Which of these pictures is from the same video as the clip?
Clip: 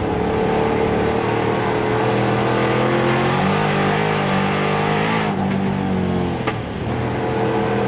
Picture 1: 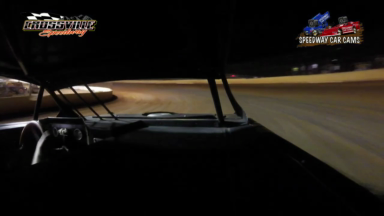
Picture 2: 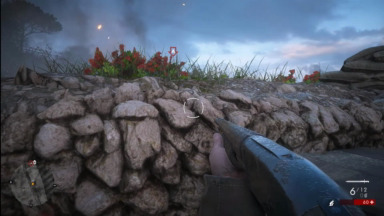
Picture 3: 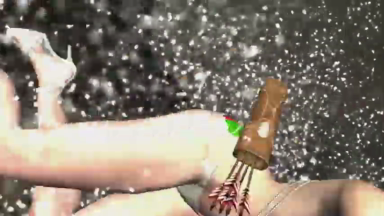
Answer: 1